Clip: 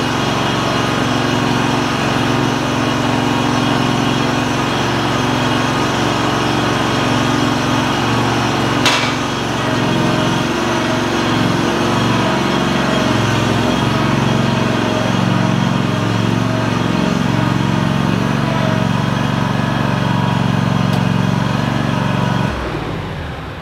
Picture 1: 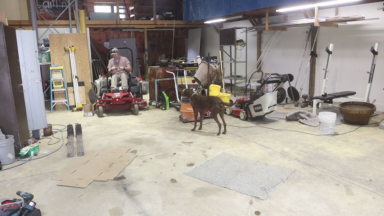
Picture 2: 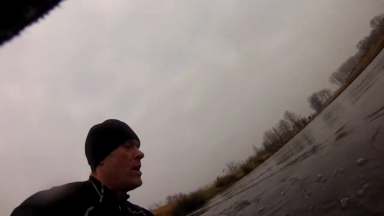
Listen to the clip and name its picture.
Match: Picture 1